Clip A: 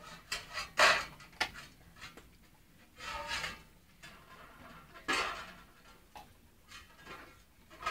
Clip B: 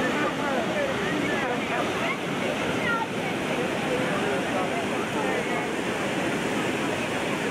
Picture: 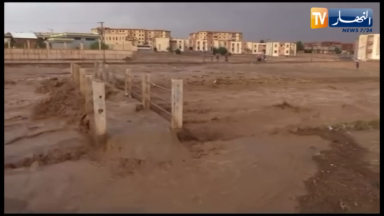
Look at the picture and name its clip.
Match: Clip B